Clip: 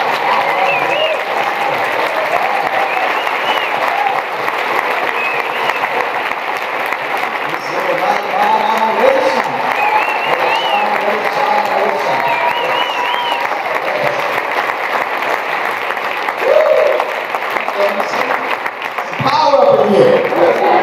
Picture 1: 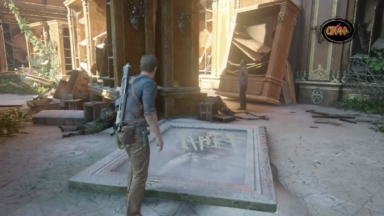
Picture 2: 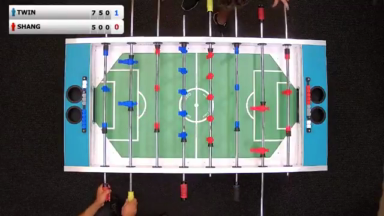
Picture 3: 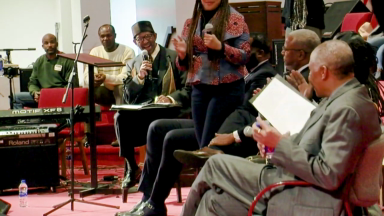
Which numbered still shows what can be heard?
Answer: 3